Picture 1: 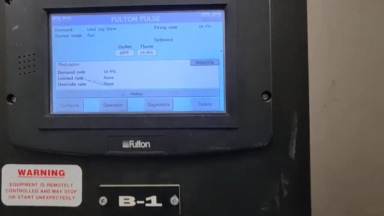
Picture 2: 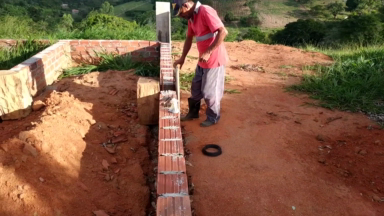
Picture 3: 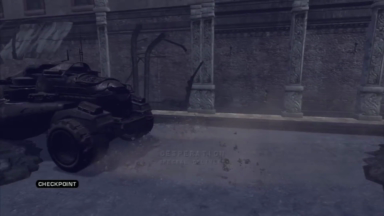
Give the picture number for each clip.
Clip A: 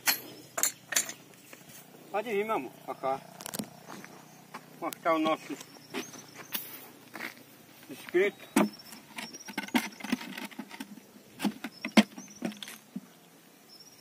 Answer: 2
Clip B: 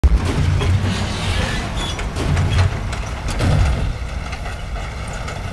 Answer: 3